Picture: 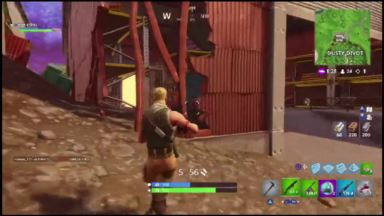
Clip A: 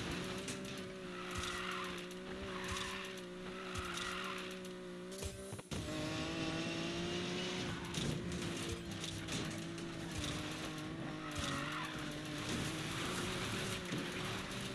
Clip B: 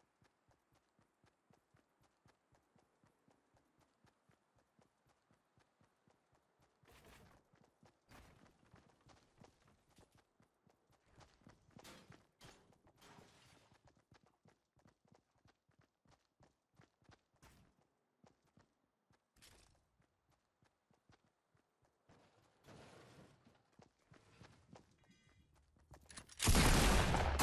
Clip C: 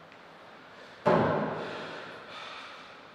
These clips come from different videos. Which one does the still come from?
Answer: B